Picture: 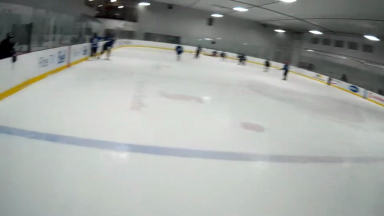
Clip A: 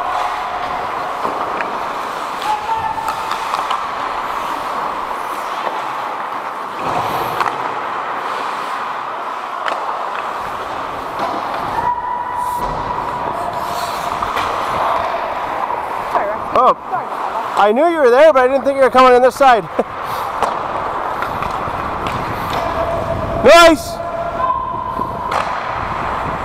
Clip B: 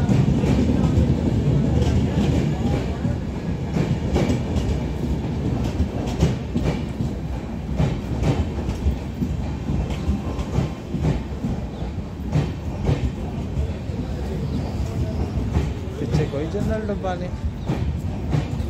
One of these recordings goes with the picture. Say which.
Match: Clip A